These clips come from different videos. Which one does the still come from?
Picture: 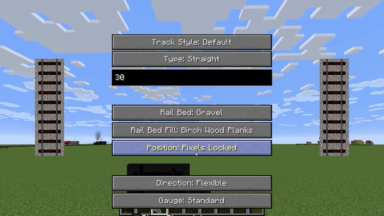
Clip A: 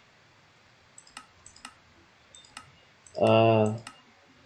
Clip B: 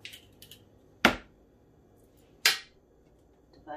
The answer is A